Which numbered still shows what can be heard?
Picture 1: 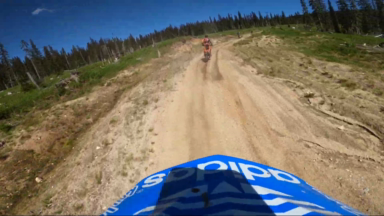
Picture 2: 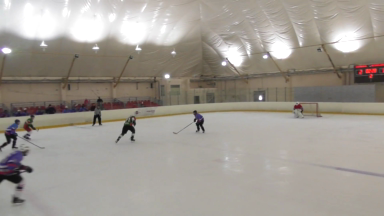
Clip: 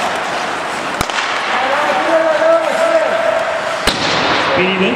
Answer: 2